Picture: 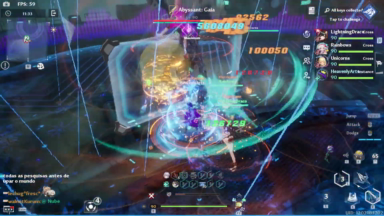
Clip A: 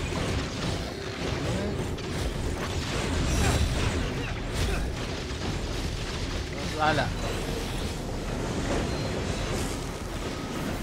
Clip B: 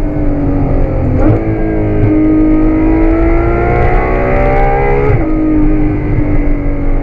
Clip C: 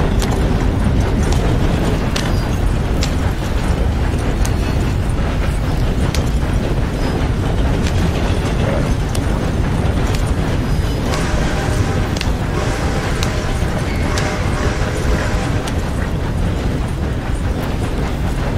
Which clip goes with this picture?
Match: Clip A